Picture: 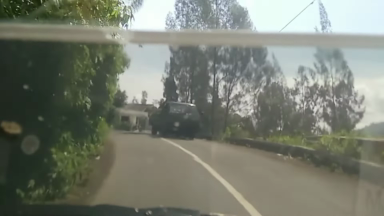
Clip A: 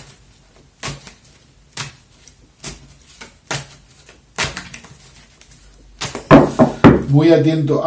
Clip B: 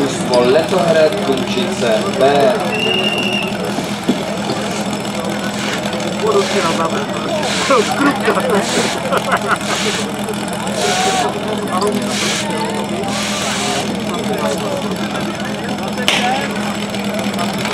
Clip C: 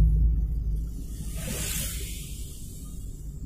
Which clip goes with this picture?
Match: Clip C